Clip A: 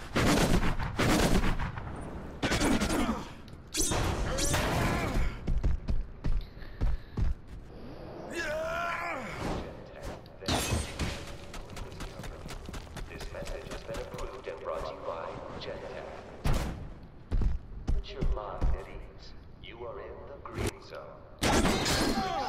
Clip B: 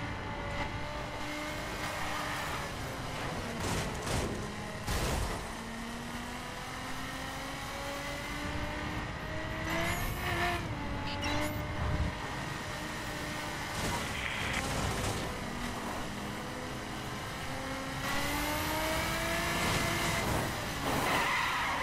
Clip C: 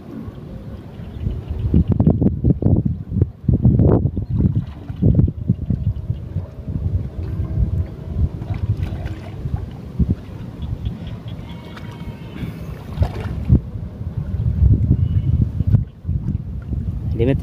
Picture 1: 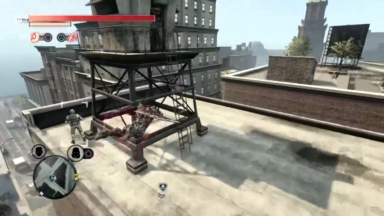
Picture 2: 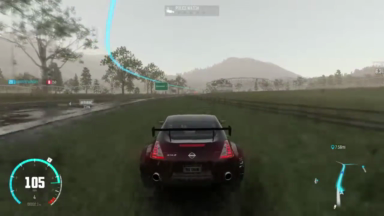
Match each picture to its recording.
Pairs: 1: A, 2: B